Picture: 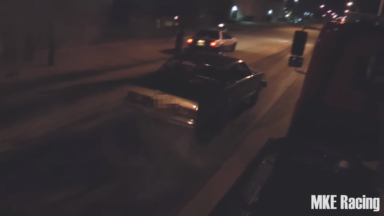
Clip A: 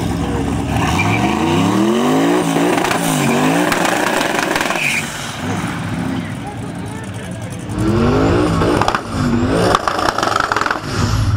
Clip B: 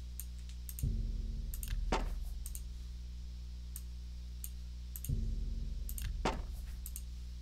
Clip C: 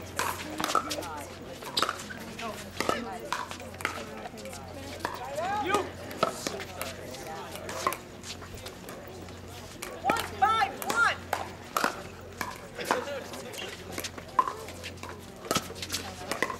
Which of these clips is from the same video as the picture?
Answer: A